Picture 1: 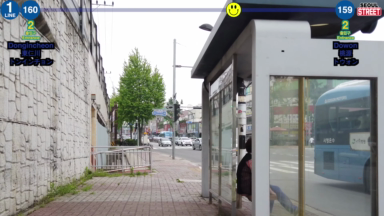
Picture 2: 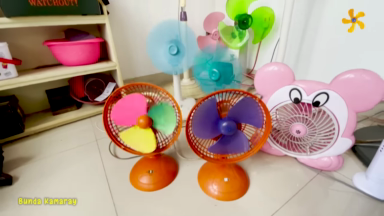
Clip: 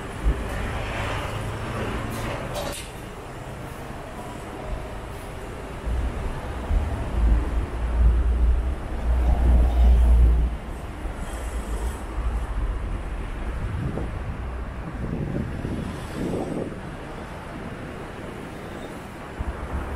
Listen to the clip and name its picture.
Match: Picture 1